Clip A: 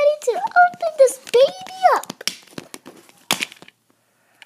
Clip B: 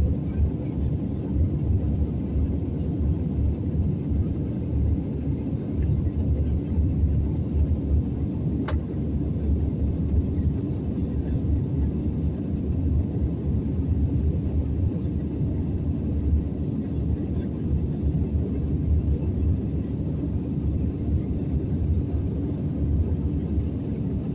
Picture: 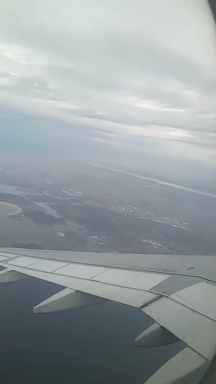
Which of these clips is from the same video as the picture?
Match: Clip B